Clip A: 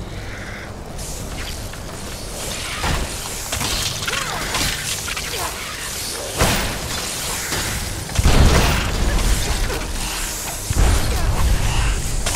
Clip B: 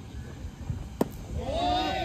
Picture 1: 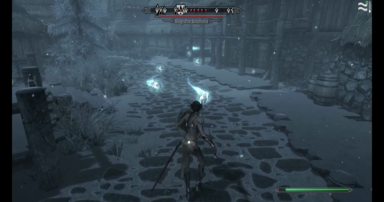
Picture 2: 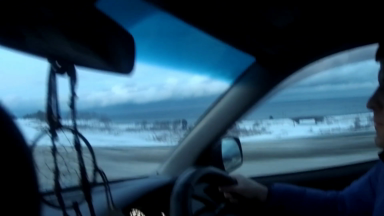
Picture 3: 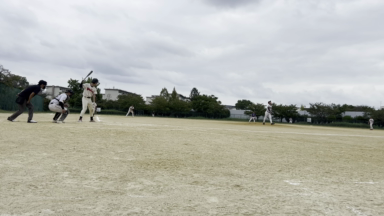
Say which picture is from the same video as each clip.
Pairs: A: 1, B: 3